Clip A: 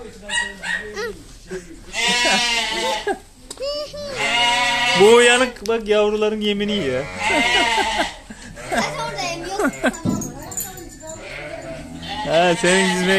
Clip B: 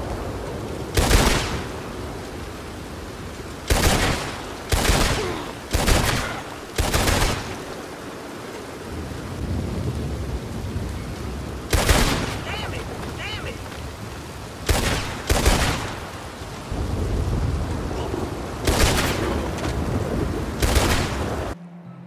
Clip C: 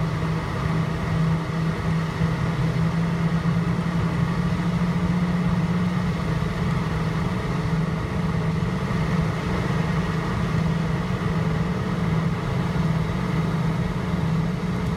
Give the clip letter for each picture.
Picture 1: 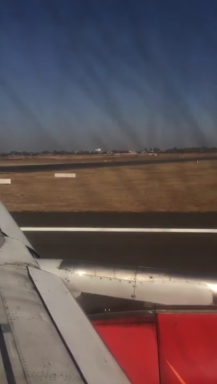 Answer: C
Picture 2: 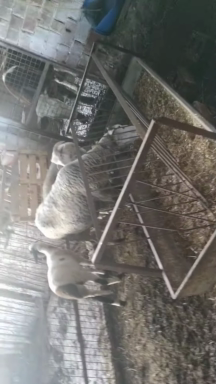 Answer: A